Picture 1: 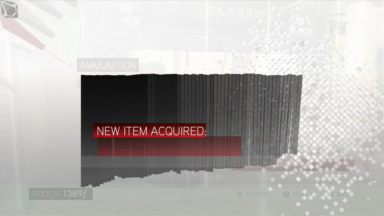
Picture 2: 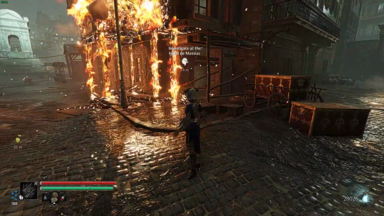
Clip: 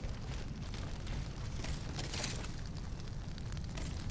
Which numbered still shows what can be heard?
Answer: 2